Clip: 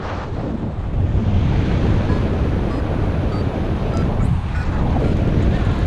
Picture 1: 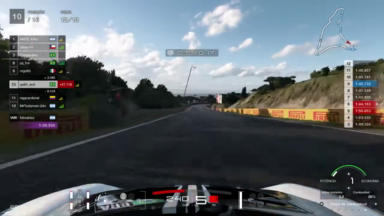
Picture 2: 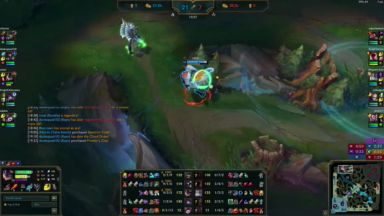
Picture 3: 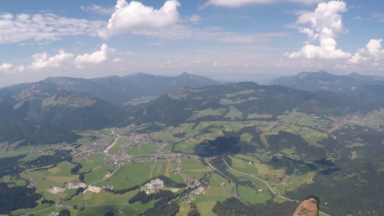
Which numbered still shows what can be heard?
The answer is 3